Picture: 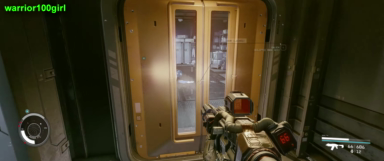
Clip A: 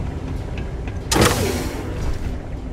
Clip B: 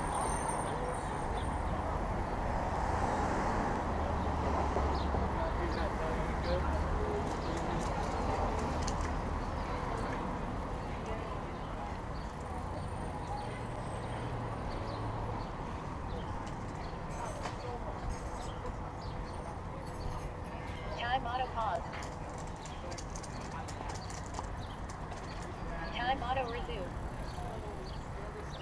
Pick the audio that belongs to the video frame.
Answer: A